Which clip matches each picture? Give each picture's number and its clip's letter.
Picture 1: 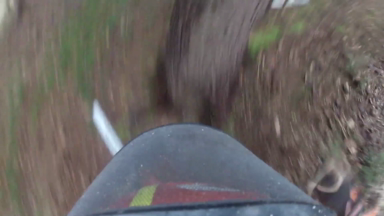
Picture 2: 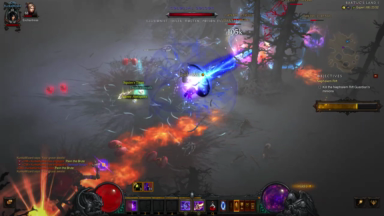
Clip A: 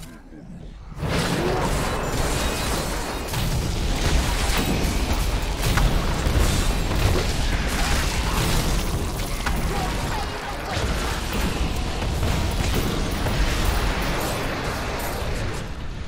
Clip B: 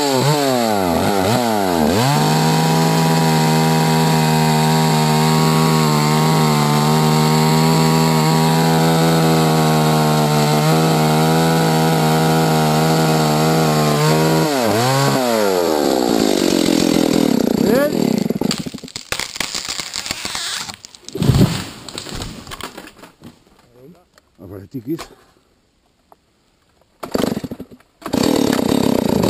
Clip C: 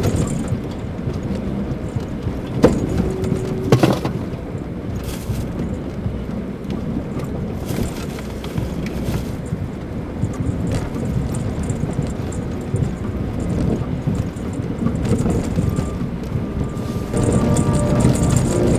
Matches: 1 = B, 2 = A